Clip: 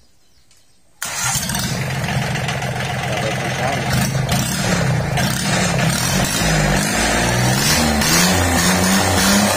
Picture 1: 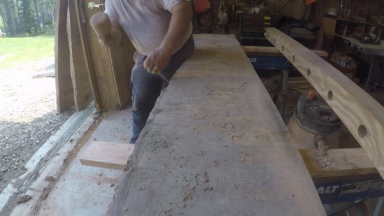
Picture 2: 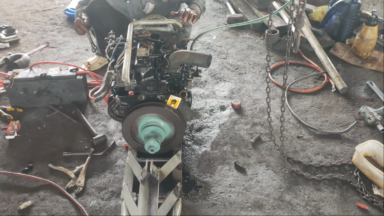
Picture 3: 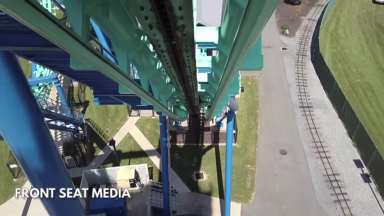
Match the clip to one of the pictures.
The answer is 2